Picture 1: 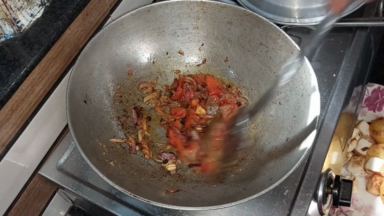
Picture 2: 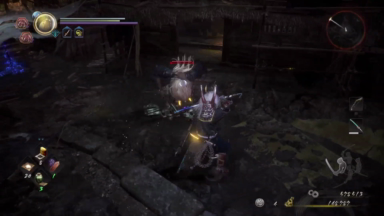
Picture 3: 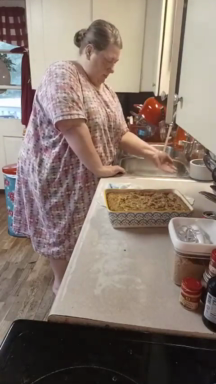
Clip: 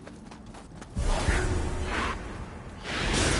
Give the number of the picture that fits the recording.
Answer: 2